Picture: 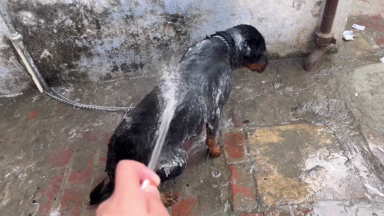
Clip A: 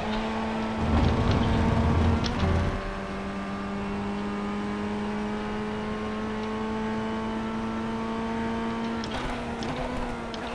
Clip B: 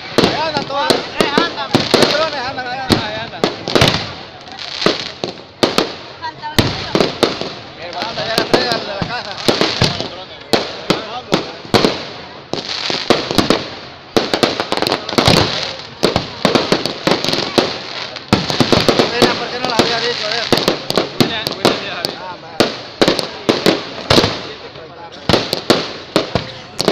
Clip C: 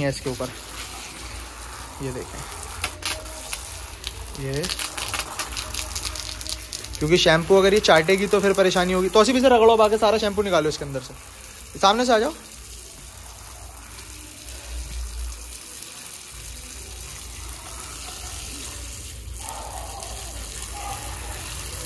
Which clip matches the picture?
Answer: C